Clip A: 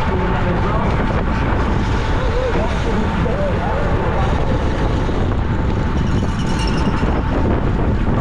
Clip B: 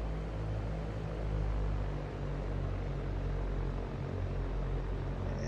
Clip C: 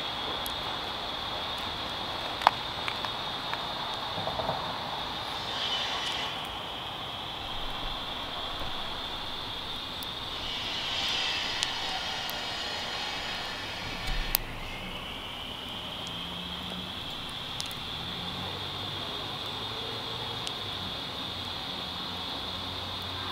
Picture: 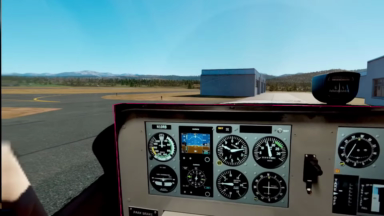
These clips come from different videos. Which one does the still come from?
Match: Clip B